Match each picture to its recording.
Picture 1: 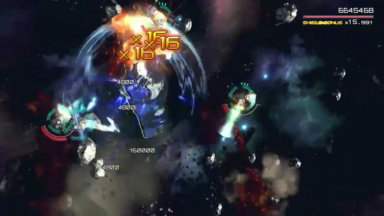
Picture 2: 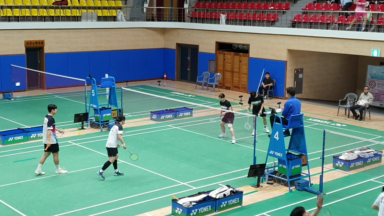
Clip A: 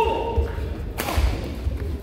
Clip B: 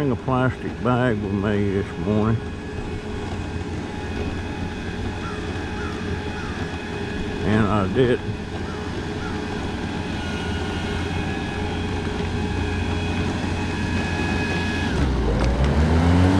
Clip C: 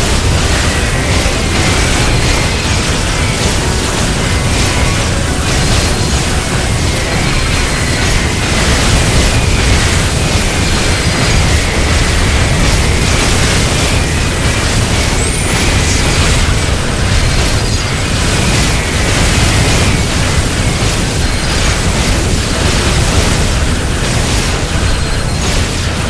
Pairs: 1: C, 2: A